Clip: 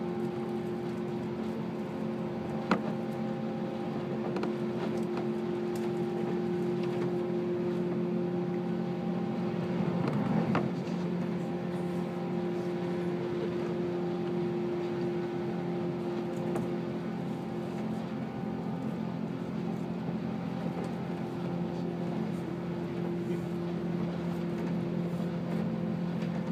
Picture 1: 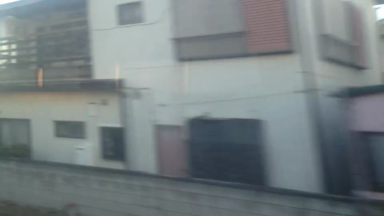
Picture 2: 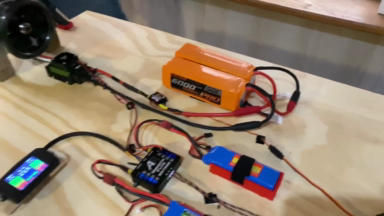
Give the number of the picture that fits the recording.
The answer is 1